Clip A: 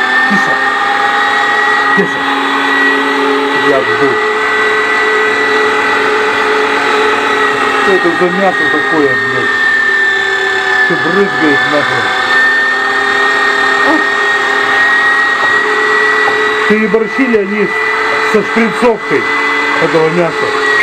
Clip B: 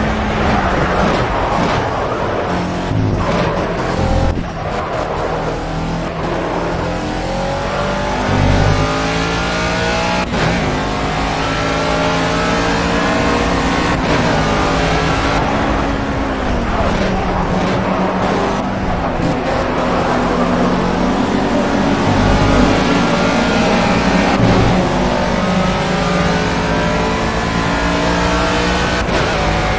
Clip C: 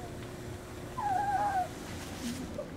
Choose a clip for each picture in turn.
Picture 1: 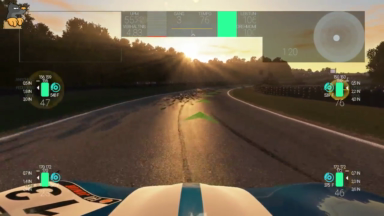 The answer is B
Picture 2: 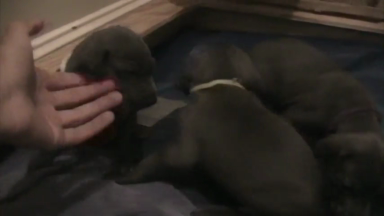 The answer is C